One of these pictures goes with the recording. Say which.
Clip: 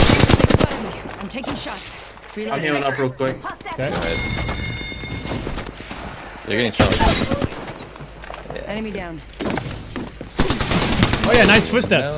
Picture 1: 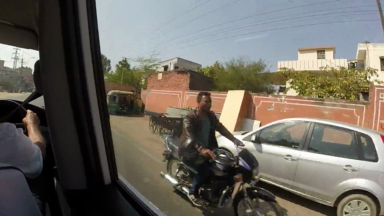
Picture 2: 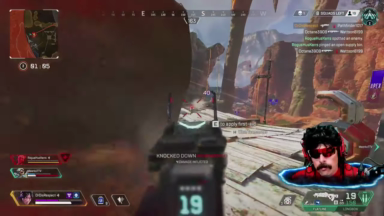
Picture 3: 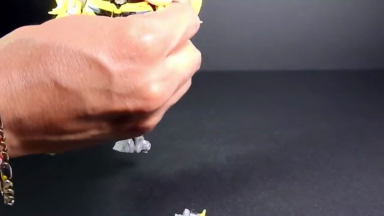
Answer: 2